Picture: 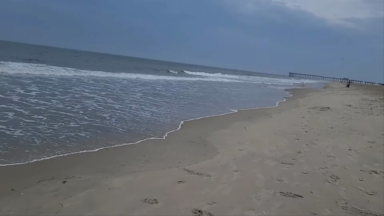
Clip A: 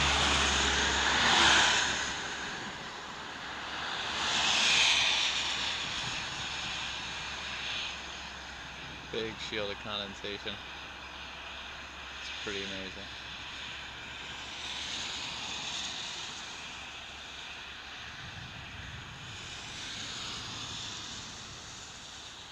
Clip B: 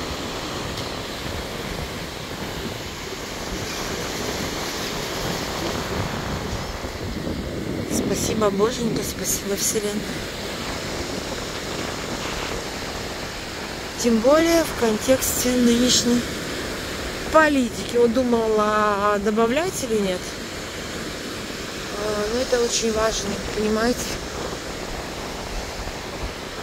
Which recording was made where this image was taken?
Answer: B